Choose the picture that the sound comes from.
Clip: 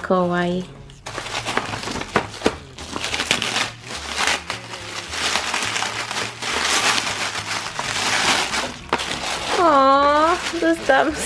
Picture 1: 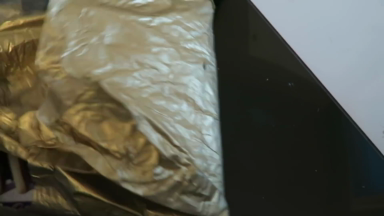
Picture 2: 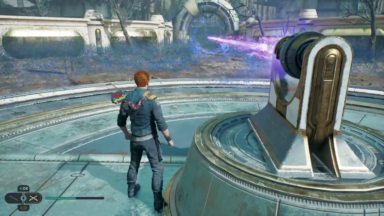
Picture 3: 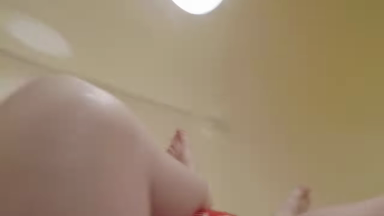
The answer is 1